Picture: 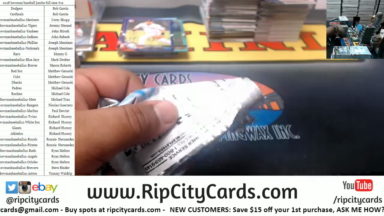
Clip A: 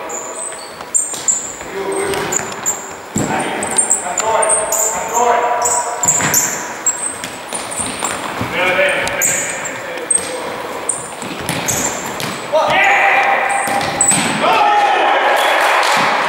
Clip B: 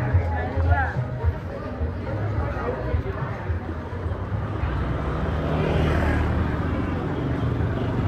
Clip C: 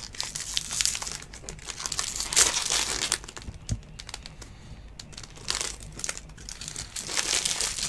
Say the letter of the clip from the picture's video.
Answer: C